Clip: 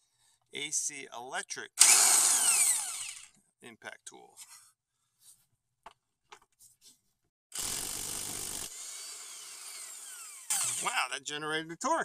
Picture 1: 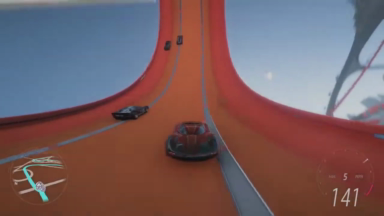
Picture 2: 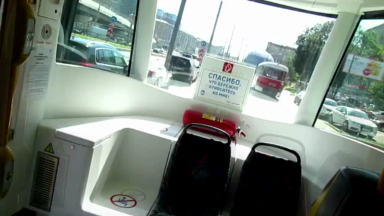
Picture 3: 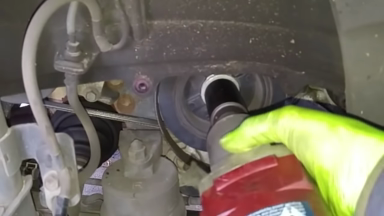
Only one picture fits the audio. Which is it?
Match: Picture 3